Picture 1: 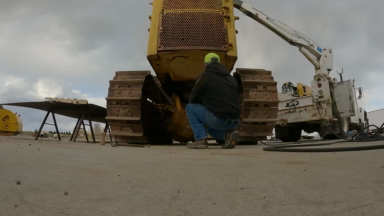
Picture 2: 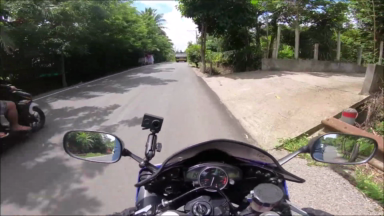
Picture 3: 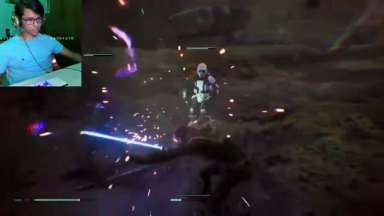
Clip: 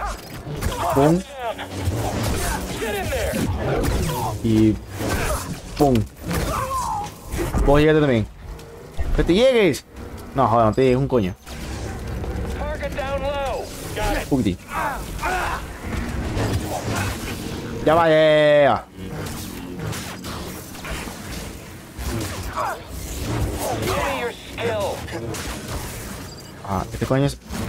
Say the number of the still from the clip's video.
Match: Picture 3